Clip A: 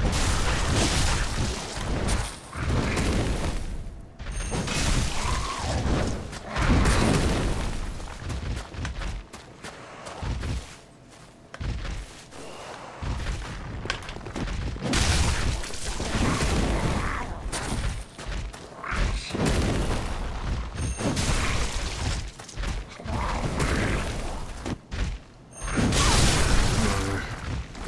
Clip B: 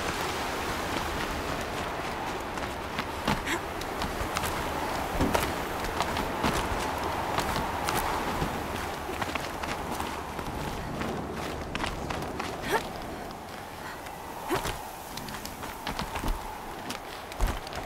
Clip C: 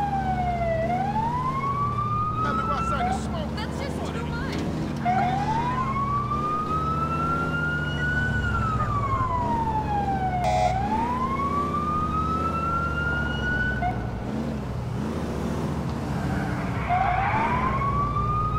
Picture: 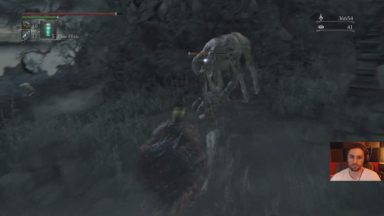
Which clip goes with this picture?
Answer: A